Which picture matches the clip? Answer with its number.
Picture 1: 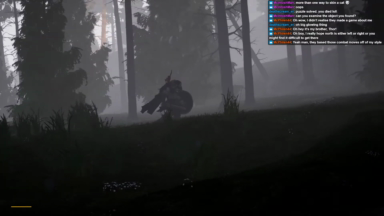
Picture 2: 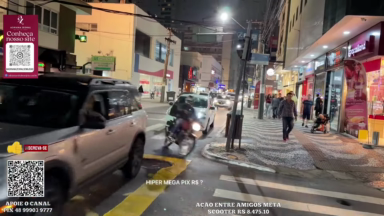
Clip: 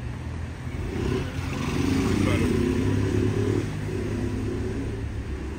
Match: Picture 2